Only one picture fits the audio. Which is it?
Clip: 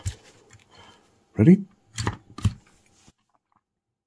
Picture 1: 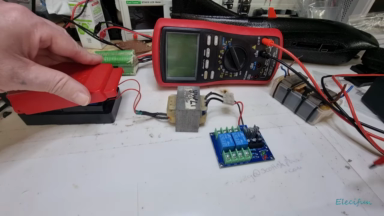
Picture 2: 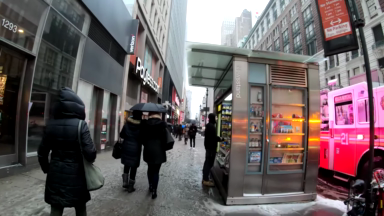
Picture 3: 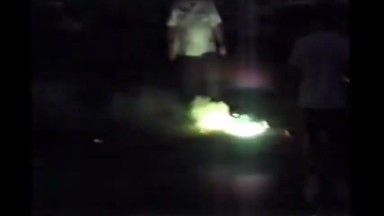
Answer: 1